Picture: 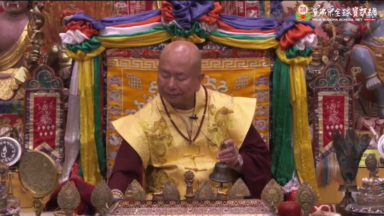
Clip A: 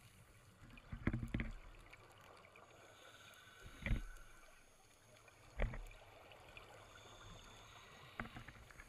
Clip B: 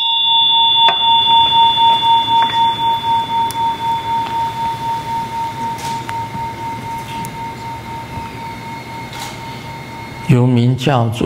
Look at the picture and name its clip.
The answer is B